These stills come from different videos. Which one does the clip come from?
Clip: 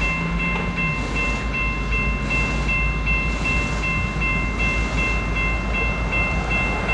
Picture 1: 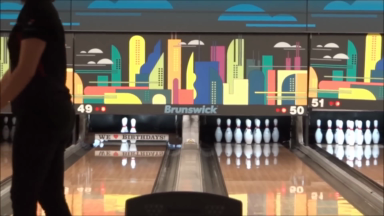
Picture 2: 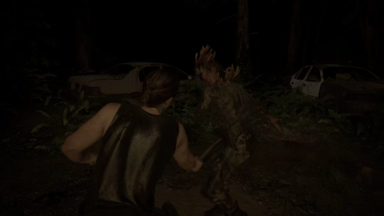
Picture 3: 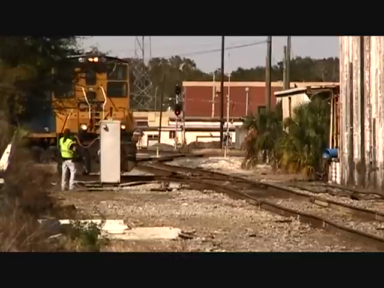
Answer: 3